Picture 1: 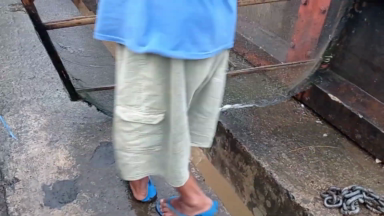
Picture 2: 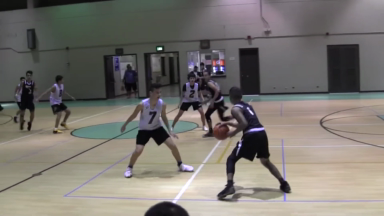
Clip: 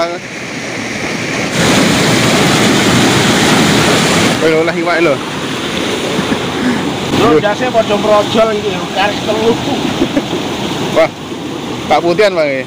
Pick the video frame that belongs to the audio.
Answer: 1